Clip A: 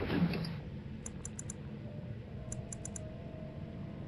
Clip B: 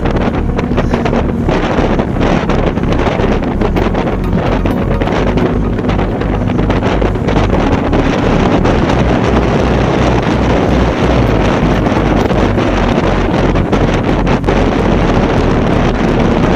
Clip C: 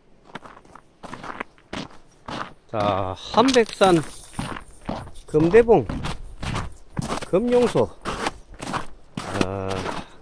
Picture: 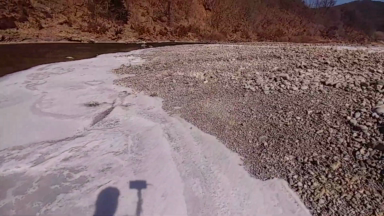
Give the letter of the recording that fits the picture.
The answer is C